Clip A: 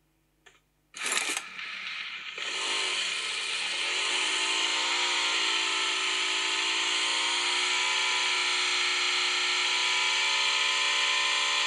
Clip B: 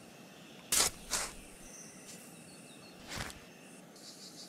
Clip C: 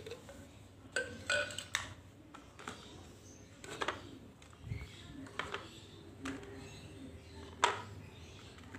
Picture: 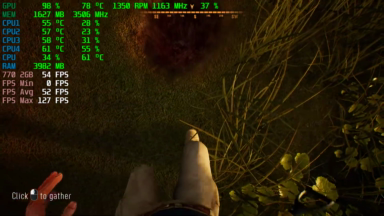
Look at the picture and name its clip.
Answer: B